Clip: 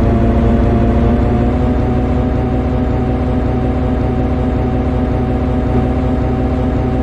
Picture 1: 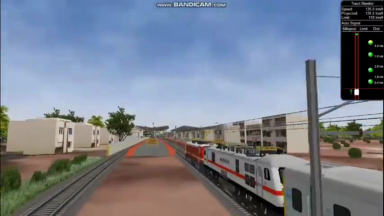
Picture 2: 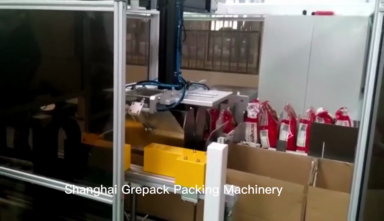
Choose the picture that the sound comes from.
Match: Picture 1